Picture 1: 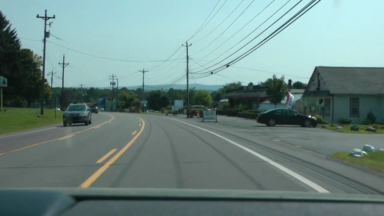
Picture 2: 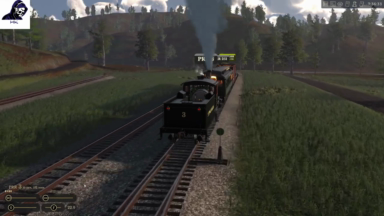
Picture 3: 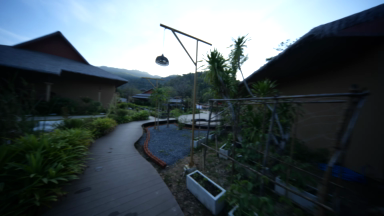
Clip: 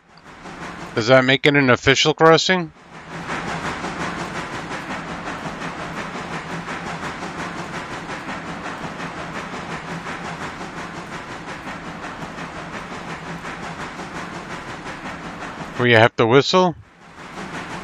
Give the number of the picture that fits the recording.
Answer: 2